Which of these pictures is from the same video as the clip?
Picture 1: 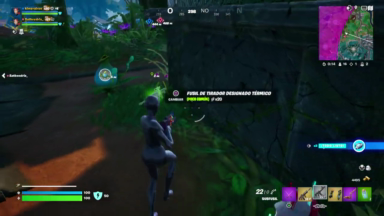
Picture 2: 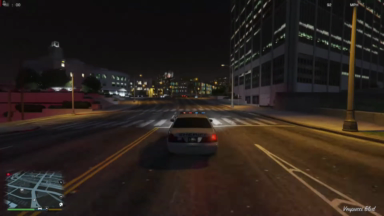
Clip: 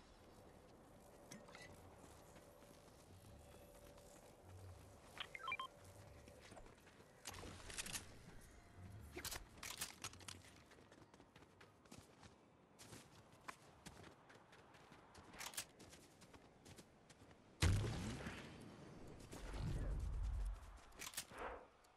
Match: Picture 1